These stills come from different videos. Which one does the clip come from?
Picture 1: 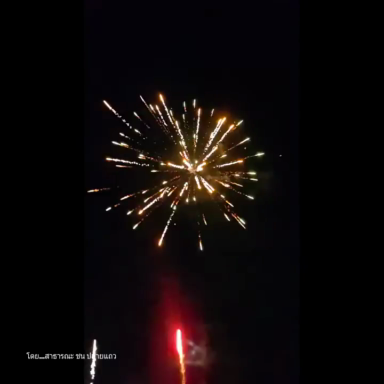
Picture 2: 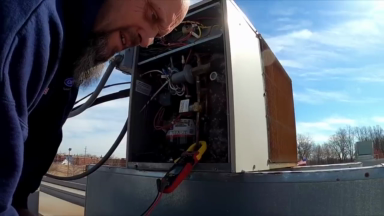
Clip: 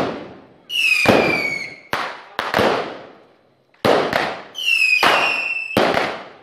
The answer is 1